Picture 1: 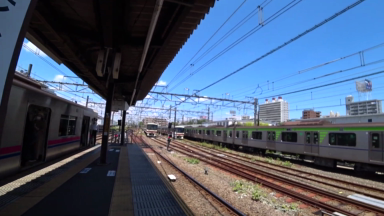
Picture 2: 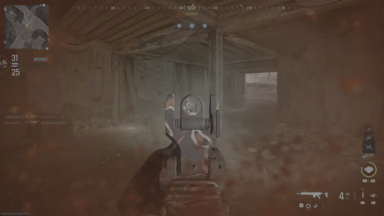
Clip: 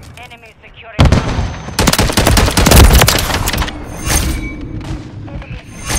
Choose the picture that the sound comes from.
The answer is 2